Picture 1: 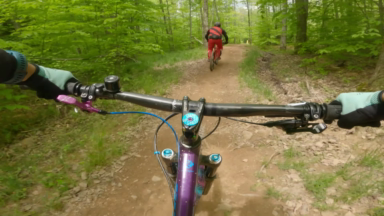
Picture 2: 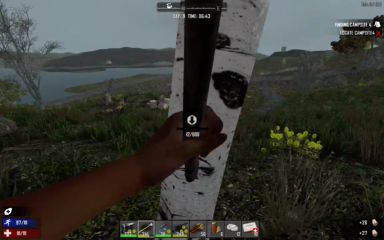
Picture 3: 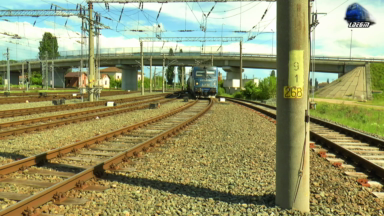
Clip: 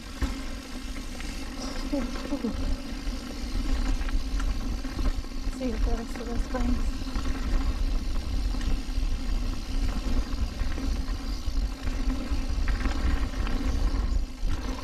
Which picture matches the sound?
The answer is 1